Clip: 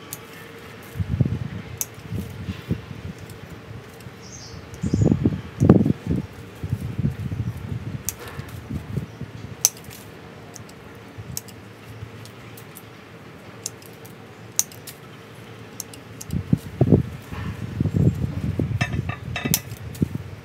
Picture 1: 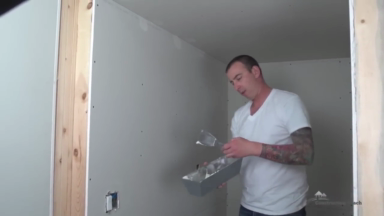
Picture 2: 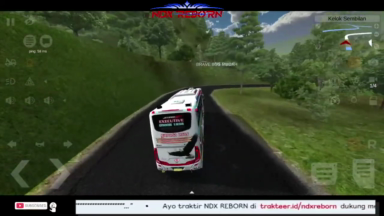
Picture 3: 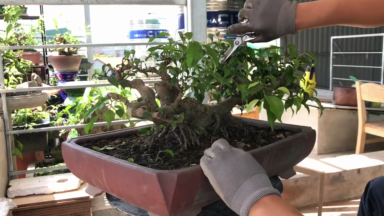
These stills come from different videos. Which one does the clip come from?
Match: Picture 3